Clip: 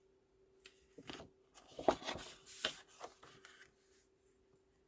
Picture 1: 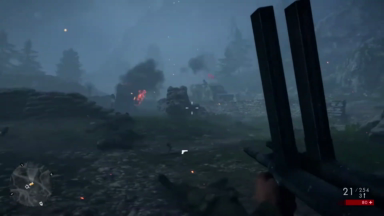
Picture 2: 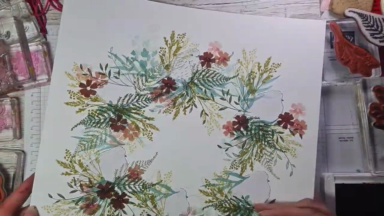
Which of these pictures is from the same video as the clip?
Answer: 2